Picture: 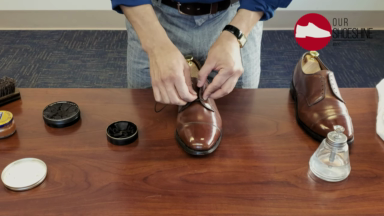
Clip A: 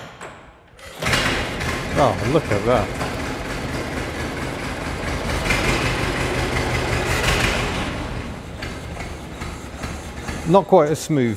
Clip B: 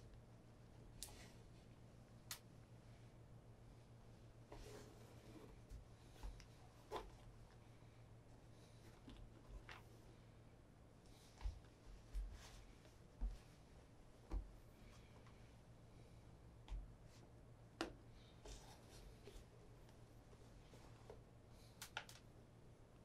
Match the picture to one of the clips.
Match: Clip B